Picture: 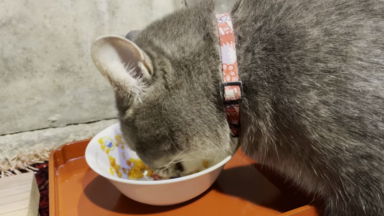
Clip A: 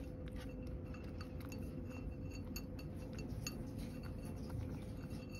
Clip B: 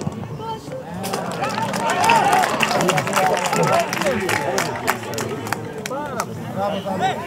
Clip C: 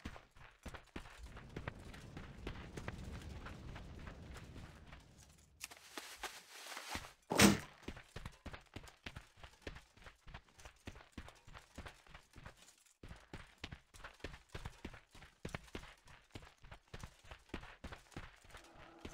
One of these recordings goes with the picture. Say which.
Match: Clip A